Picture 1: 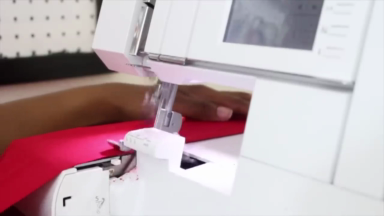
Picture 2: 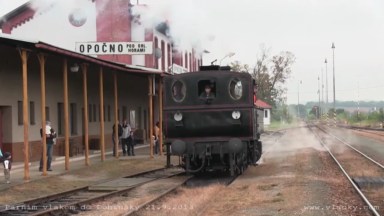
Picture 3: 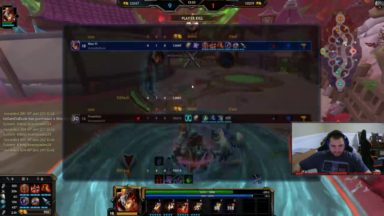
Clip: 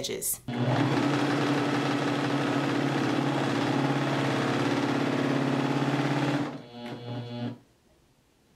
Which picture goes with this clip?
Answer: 1